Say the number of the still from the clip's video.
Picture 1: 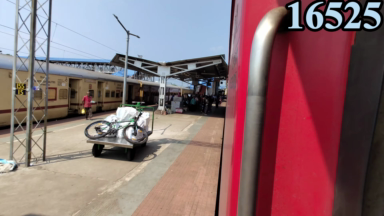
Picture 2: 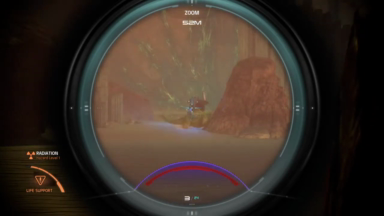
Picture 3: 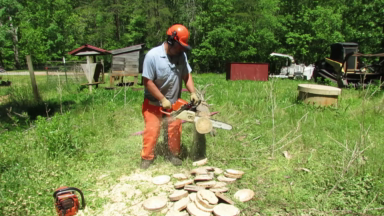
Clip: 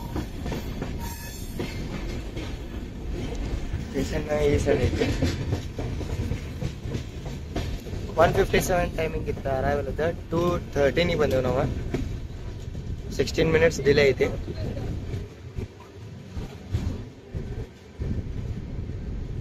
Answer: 1